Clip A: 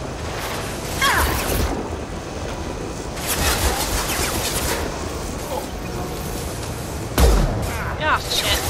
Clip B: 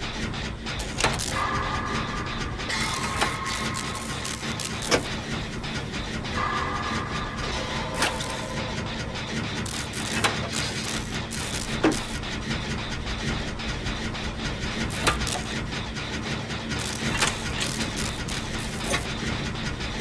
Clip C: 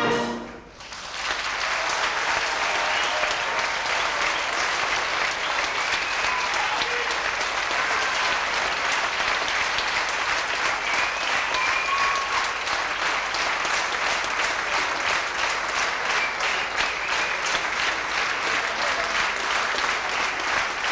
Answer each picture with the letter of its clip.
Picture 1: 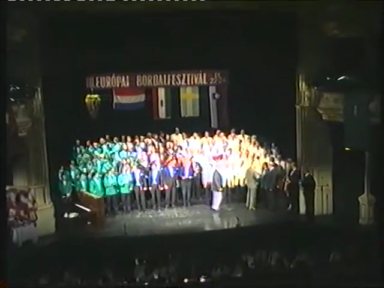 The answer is C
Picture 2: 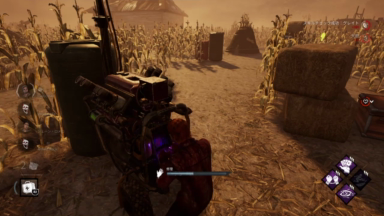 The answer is B